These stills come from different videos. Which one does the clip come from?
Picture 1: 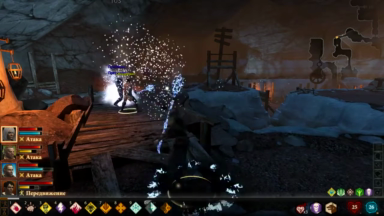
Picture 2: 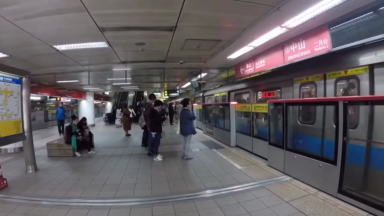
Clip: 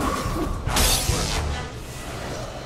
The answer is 1